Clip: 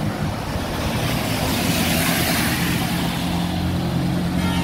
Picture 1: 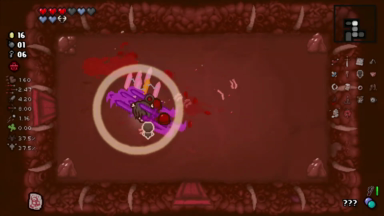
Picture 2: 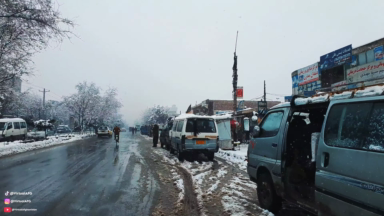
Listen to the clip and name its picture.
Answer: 2